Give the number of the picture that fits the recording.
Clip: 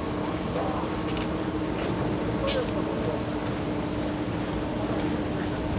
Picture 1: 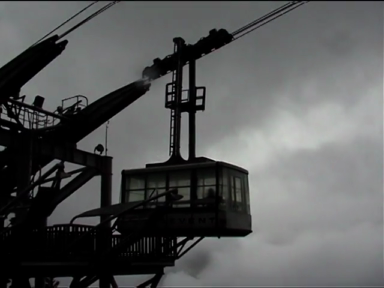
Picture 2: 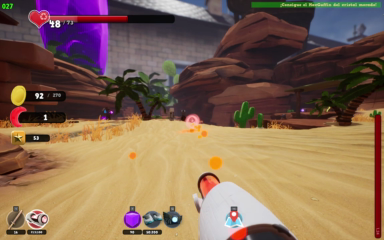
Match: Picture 1